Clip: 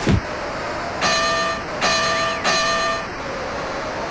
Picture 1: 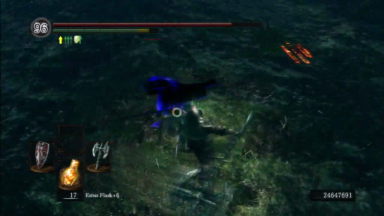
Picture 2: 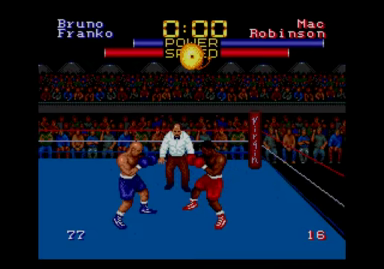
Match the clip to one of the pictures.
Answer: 2